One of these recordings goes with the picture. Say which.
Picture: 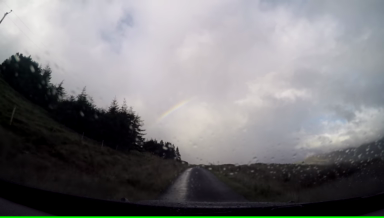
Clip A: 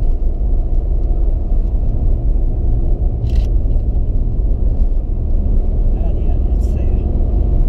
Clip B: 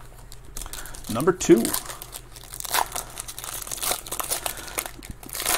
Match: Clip A